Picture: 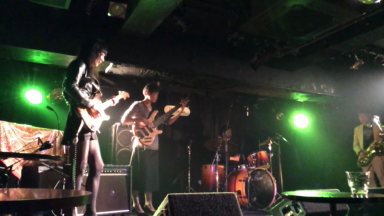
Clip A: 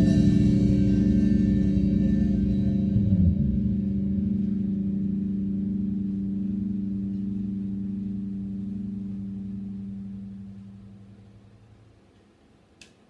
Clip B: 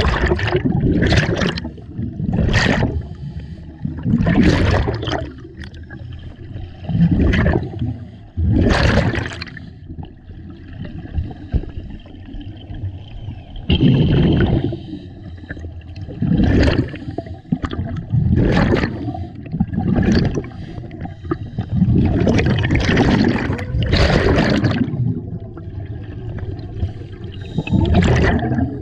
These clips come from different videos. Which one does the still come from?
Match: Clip A